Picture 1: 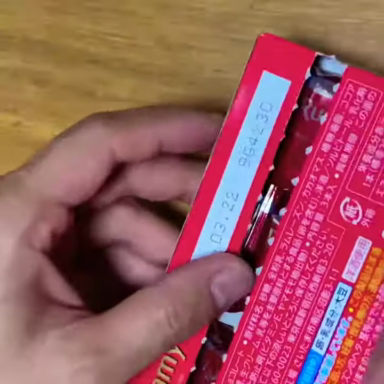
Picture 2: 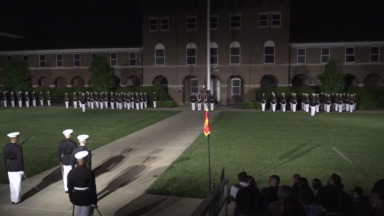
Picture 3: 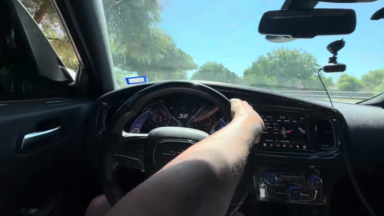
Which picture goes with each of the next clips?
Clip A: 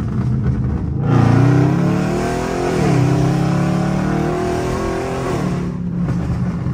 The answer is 3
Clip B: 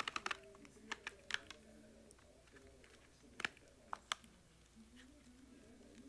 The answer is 1